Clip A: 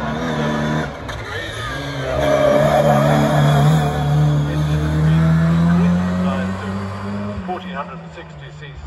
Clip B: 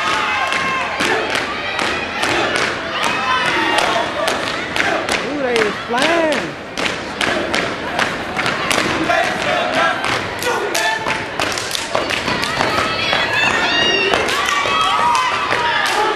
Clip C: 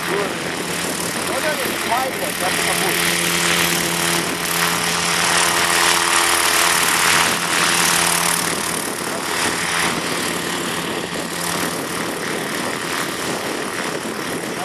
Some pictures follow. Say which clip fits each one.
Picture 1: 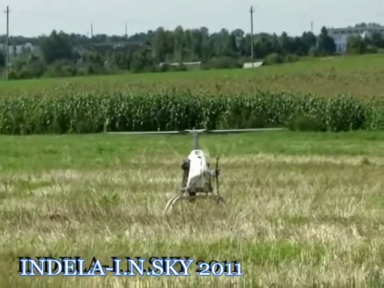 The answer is C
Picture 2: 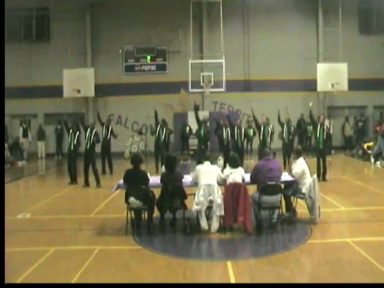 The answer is B